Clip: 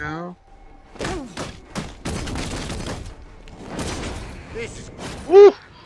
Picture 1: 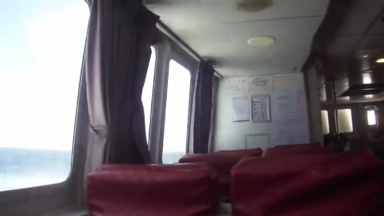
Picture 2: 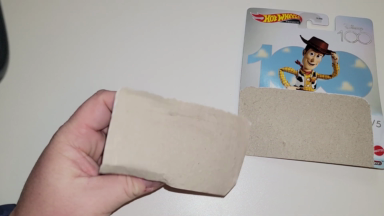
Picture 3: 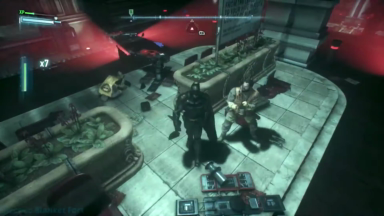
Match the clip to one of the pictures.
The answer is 3